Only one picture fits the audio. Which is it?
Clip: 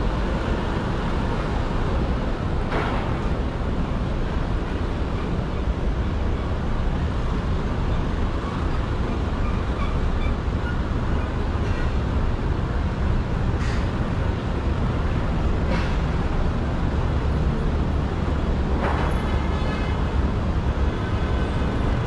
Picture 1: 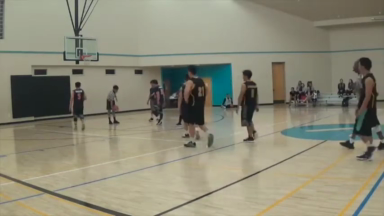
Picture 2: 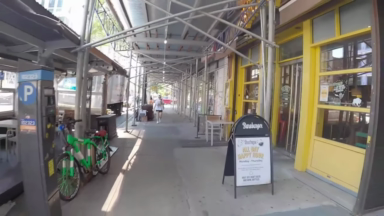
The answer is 2